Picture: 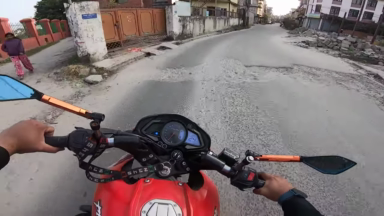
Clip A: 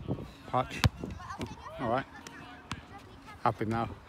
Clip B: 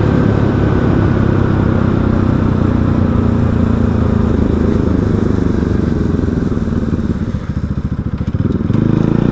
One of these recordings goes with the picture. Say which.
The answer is B